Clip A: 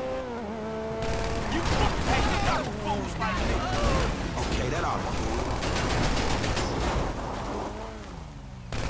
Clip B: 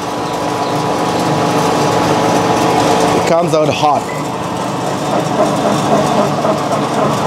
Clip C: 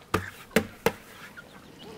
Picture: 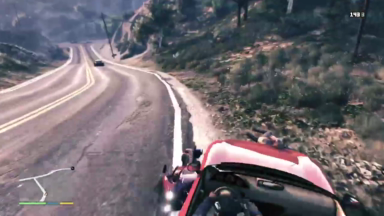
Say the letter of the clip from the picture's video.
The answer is A